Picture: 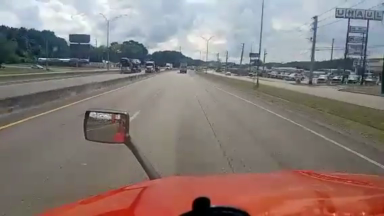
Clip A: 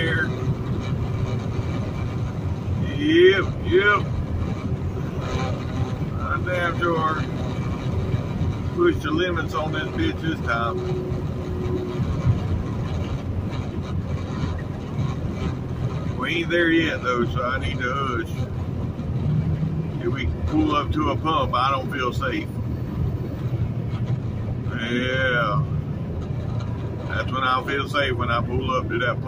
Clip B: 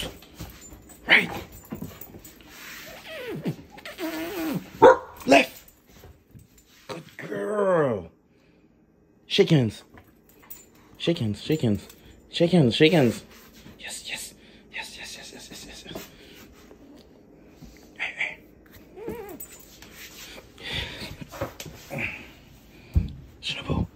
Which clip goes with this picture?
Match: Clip A